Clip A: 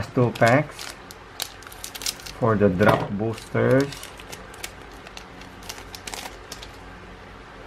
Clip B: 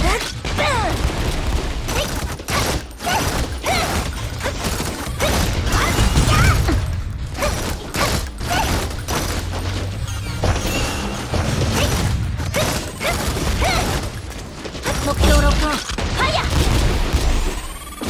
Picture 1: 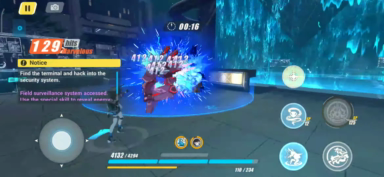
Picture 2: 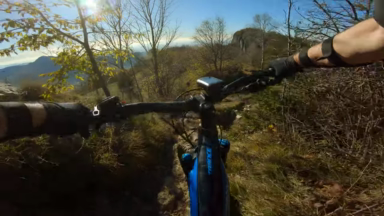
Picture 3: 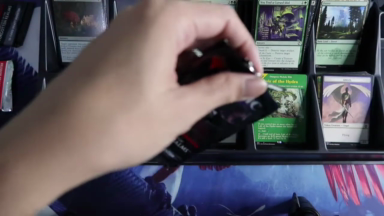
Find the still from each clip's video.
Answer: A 3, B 1